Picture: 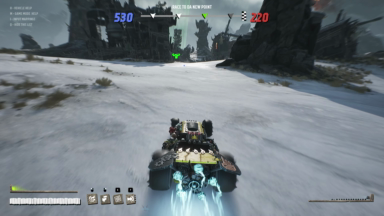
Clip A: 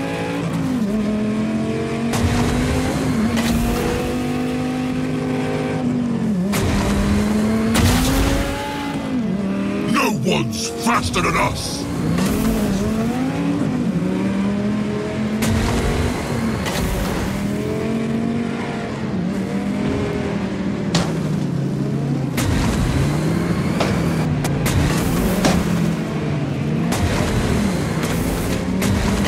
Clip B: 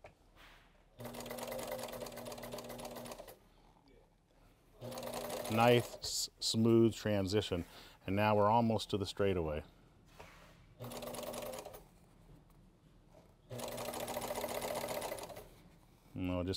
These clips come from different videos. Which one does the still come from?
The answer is A